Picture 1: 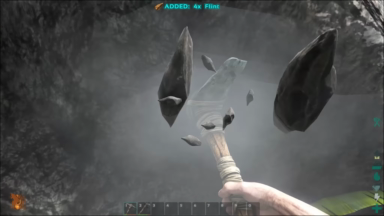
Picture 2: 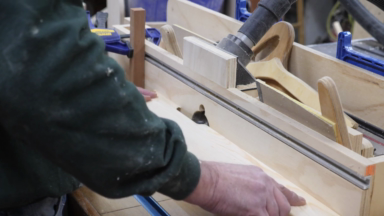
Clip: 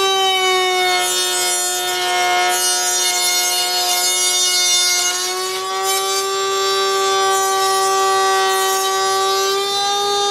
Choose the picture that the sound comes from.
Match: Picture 2